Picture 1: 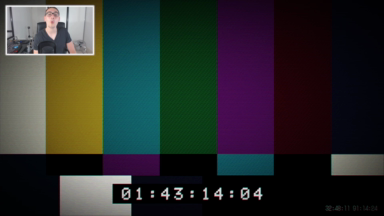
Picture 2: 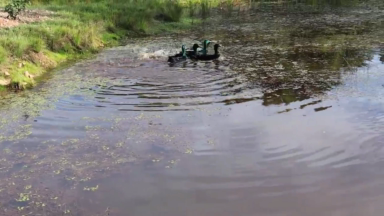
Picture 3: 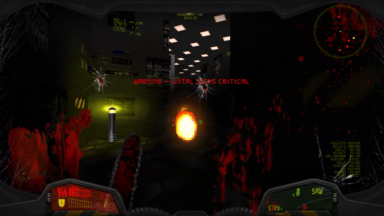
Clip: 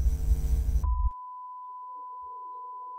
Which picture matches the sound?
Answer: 1